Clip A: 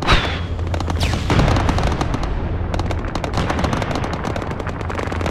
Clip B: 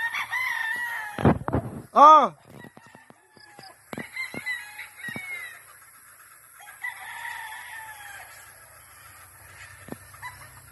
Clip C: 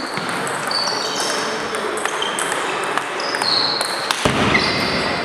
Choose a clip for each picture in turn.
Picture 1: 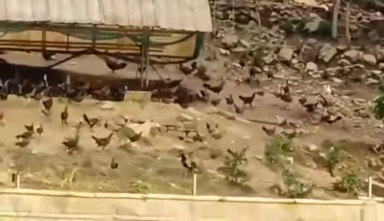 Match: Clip B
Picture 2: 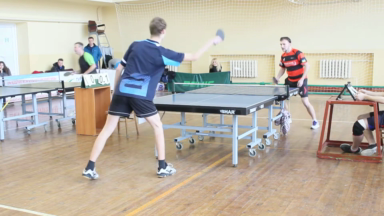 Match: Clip C